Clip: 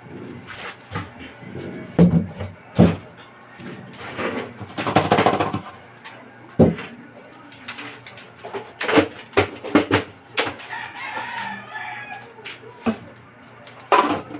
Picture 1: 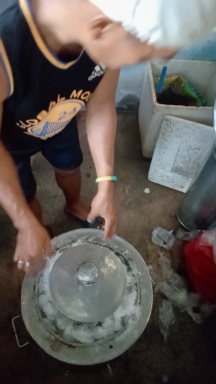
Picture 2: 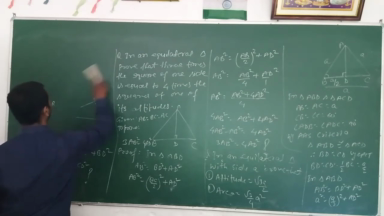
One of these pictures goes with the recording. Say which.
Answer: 1